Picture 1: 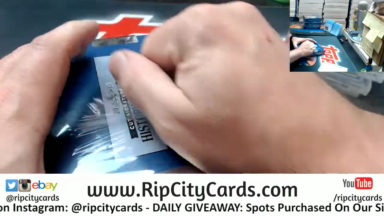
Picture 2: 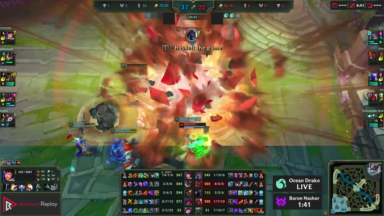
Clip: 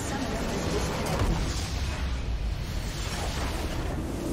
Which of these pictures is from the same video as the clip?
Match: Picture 2